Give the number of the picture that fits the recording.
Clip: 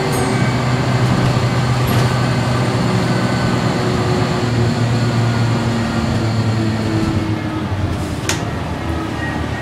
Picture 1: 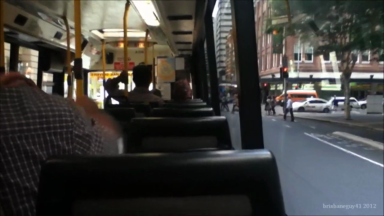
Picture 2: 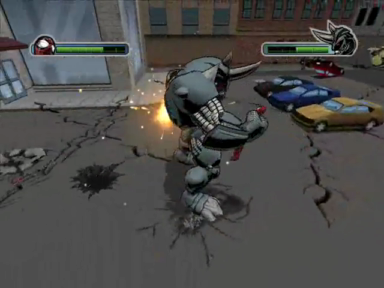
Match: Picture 1